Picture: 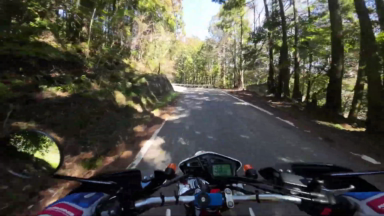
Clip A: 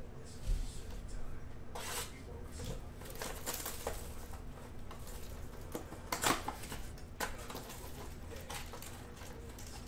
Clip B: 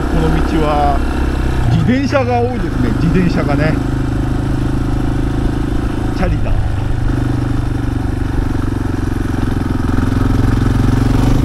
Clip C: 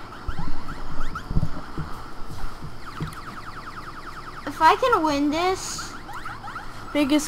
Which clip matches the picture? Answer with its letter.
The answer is B